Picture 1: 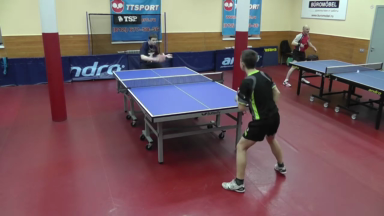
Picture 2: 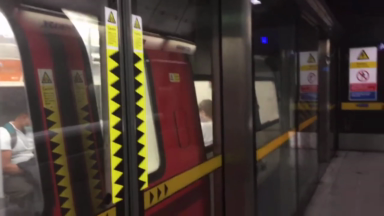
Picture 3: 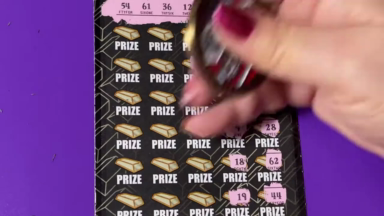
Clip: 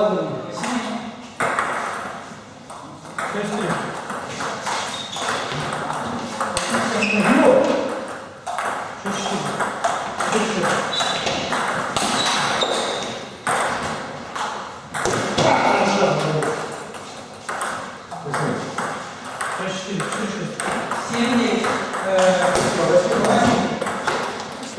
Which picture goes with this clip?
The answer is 1